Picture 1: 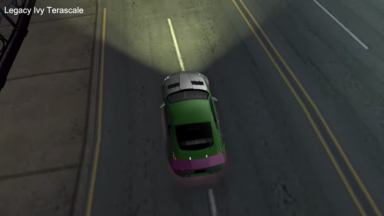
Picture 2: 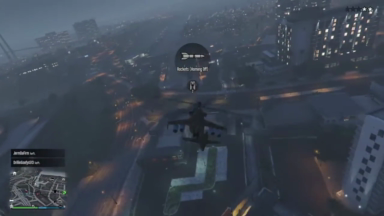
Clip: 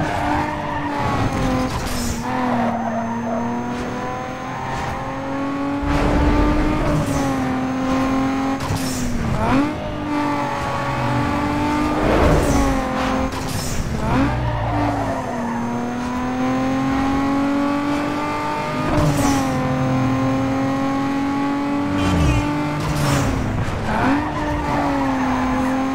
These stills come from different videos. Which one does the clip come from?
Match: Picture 1